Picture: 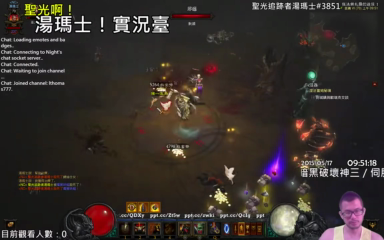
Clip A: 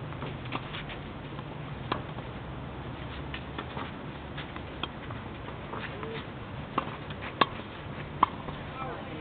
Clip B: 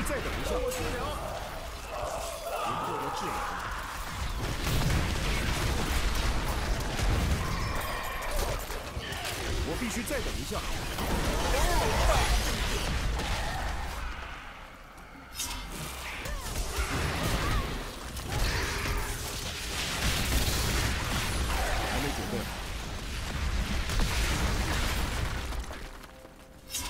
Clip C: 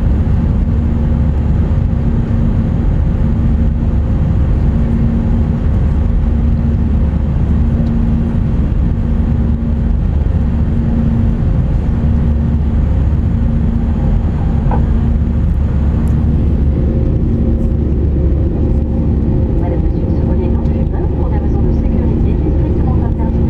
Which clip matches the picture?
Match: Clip B